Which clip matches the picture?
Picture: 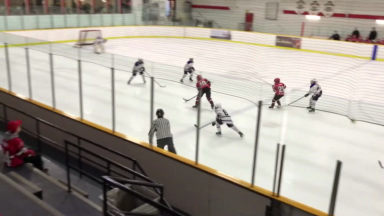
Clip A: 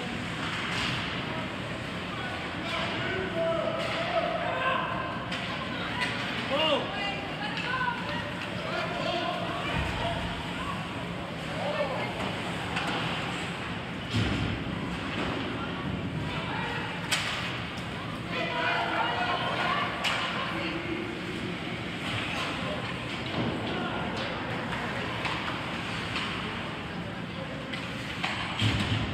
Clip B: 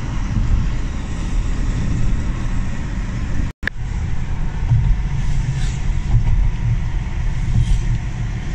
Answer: A